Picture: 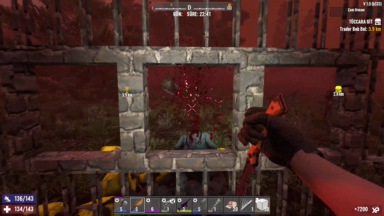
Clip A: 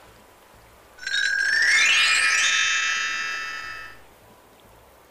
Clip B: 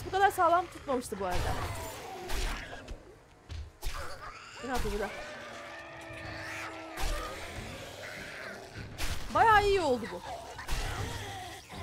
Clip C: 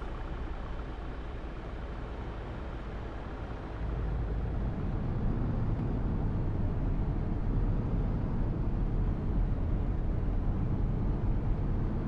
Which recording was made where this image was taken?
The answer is B